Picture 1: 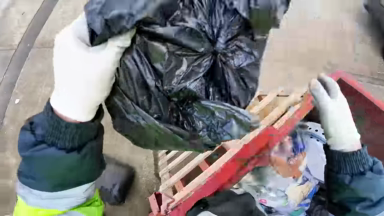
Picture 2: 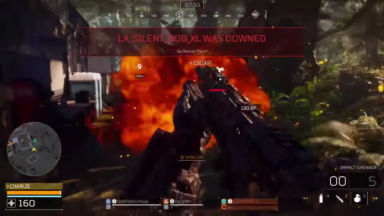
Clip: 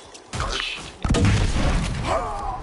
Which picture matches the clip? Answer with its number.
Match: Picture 2